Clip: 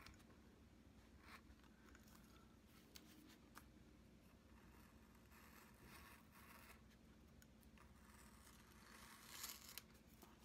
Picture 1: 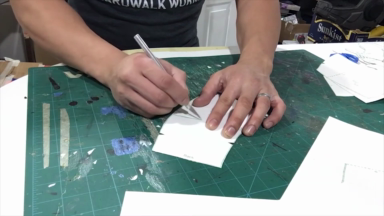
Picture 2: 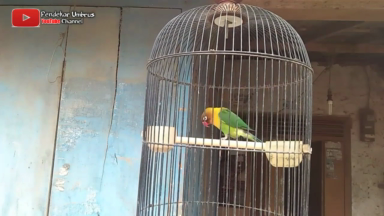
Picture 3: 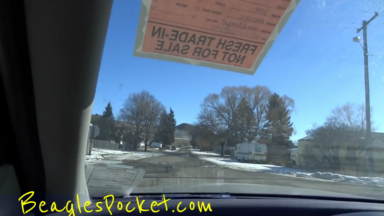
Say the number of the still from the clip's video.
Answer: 1